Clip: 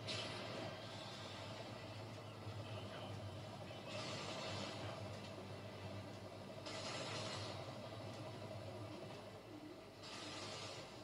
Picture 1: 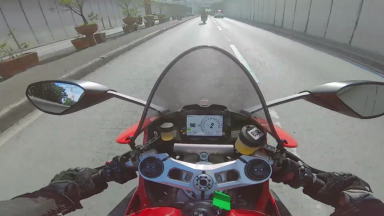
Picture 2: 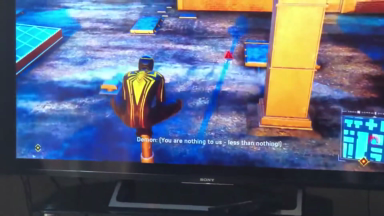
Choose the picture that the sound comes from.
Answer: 2